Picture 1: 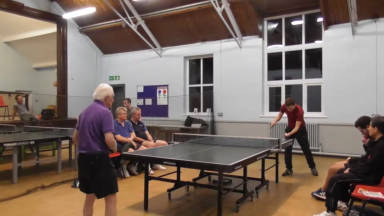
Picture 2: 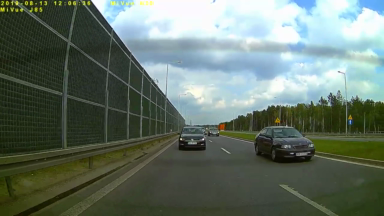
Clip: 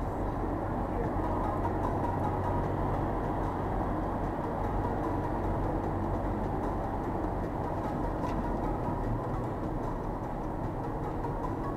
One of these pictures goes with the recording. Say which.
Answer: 2